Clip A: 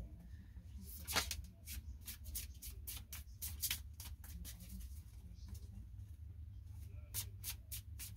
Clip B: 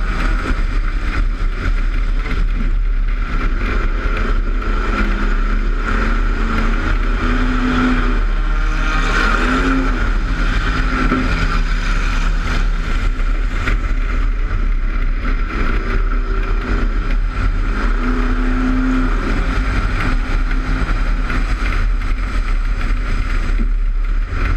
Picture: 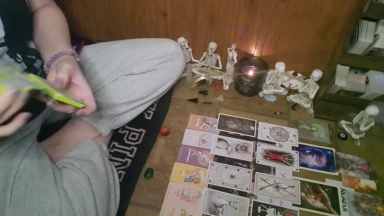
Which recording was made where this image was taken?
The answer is A